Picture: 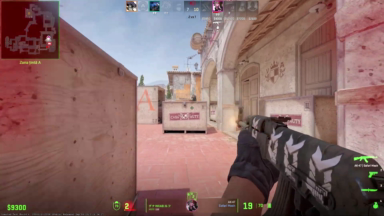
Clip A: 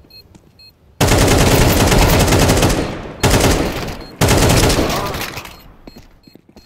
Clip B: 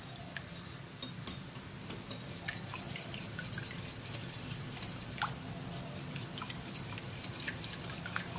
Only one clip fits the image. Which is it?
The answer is A